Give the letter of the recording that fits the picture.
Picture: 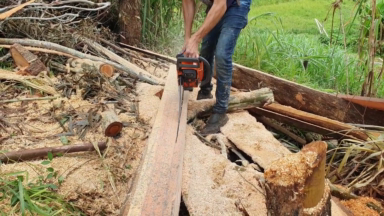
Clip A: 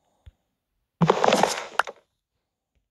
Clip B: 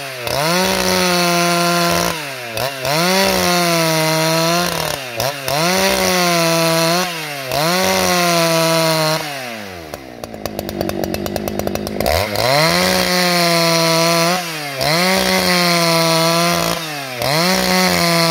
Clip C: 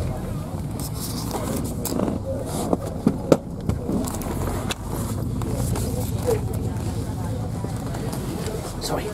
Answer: B